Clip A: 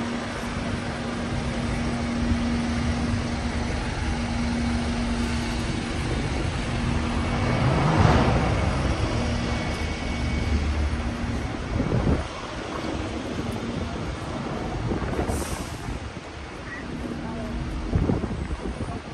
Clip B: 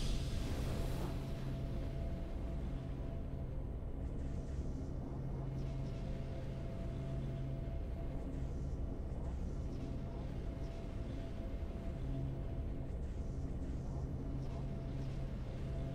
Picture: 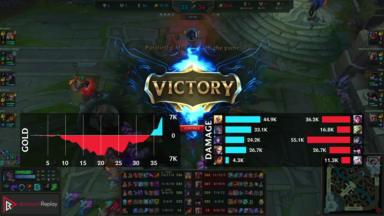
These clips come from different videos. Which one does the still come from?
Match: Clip B